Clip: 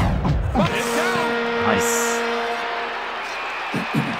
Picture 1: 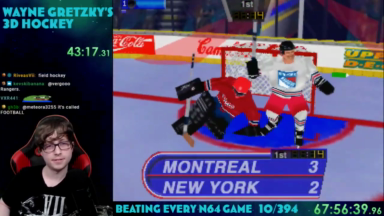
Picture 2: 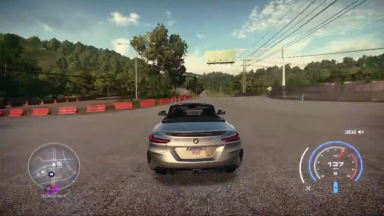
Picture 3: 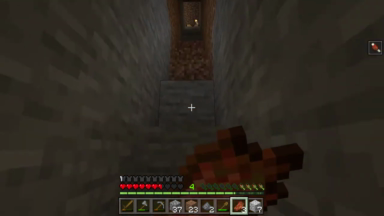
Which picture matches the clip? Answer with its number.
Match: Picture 1